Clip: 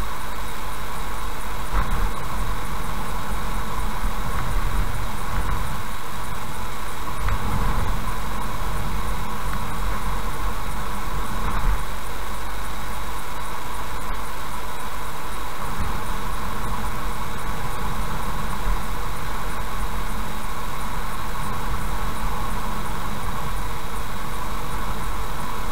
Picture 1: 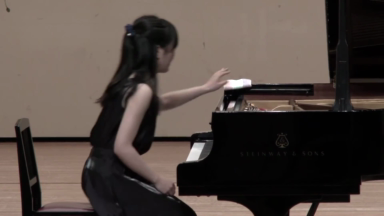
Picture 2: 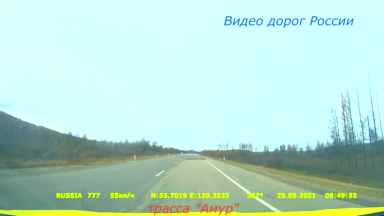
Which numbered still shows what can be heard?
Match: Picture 2